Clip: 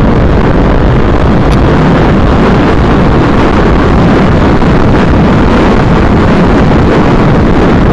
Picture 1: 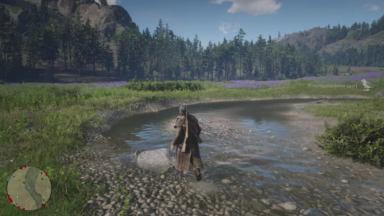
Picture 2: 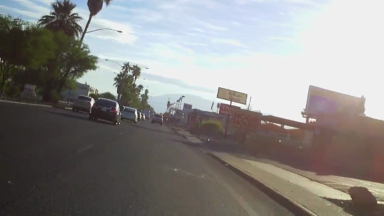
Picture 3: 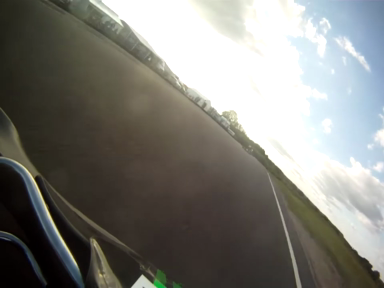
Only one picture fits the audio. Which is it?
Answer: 2